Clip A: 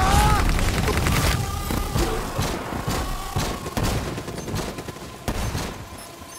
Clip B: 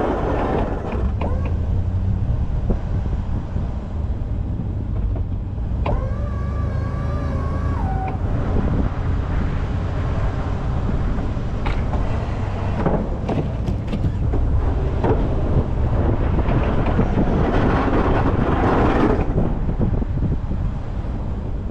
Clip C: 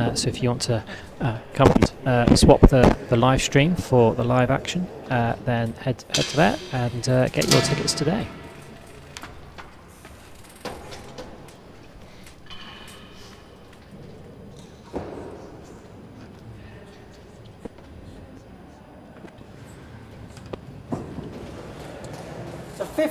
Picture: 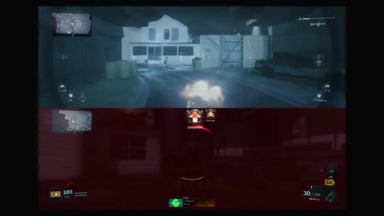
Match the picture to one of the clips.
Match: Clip A